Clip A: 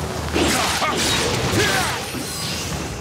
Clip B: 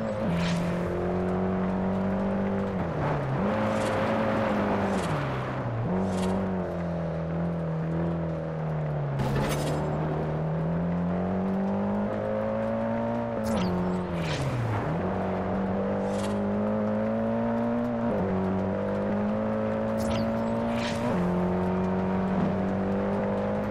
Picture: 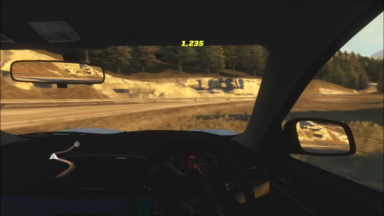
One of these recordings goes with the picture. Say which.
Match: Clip B